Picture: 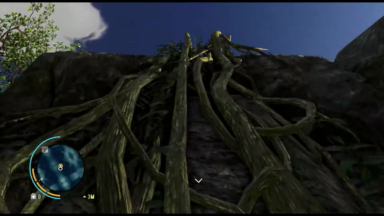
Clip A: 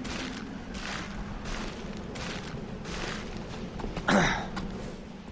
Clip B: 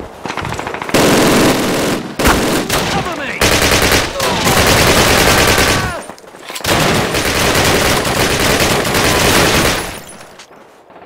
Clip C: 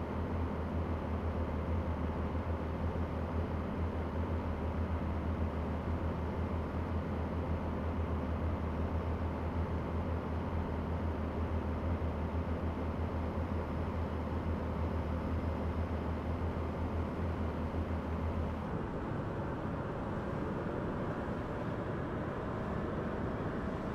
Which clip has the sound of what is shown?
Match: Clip A